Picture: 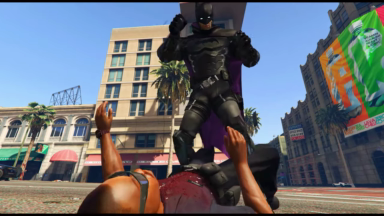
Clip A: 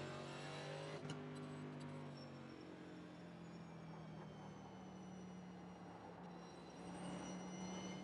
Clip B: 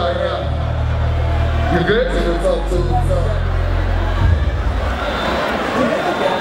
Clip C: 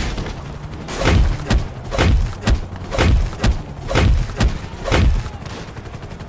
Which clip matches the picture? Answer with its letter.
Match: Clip C